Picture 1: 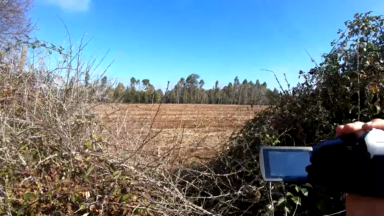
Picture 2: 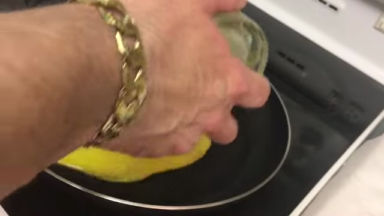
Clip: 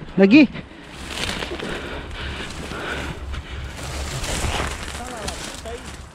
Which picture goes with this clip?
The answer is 1